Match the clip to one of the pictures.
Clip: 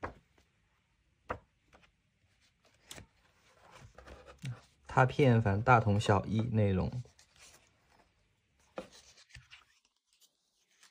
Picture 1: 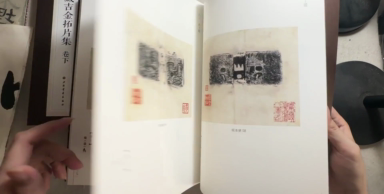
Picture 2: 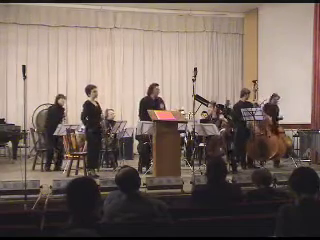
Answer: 1